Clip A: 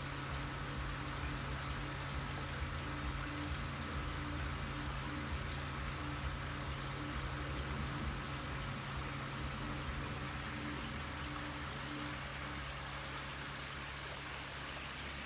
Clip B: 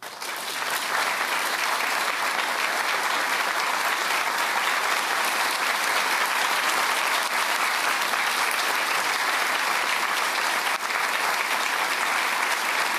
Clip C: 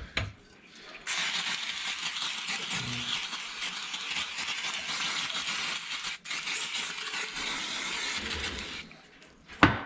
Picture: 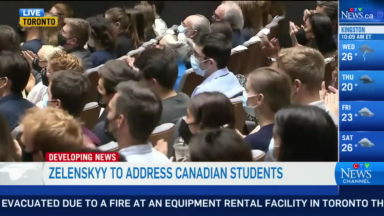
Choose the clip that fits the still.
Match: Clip B